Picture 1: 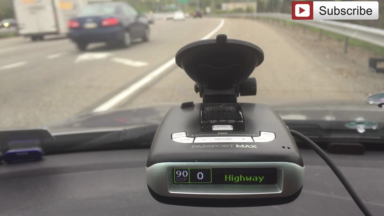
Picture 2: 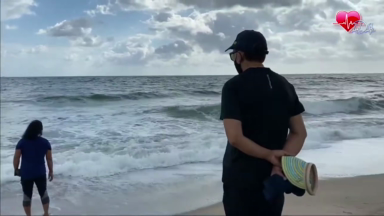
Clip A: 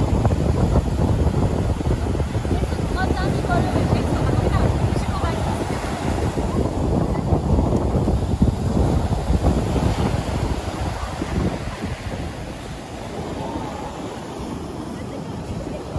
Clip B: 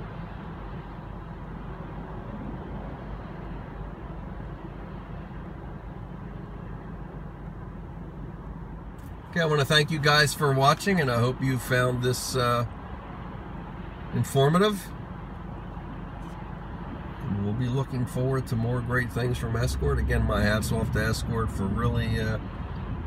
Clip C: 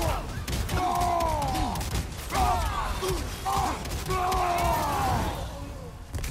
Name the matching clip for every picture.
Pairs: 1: B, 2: A